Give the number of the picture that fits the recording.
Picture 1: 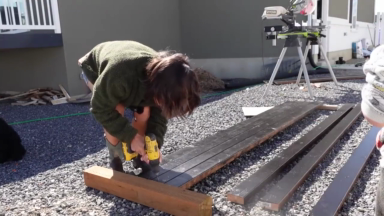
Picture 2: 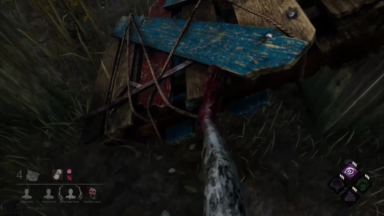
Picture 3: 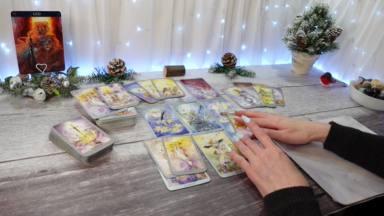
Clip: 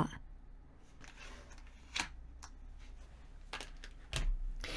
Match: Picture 3